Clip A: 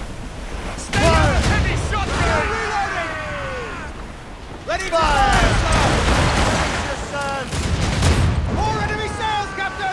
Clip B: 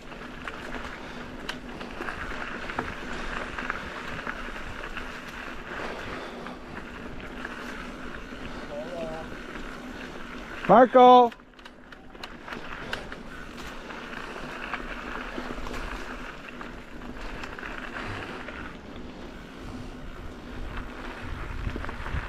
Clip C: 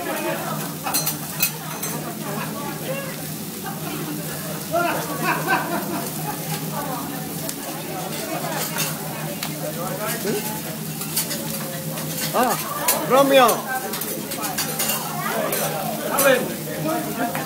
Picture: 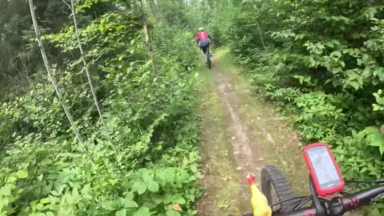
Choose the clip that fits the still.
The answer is B